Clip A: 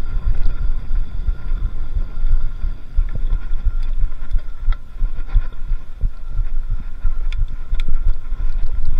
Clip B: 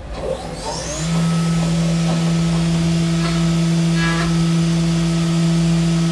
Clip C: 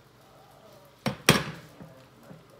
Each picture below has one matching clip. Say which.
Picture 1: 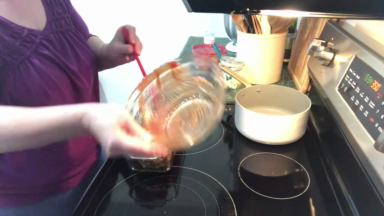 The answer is C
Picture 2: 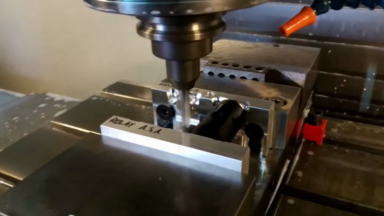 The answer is B